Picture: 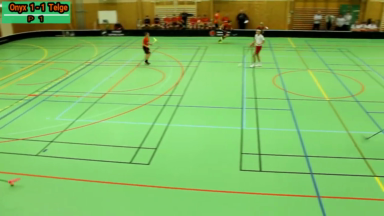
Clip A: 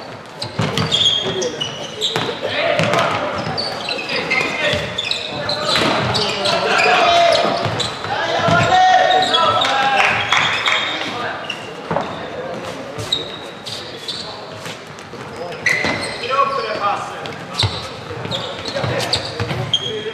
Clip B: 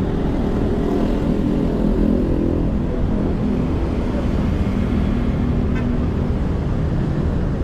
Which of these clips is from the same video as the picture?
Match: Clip A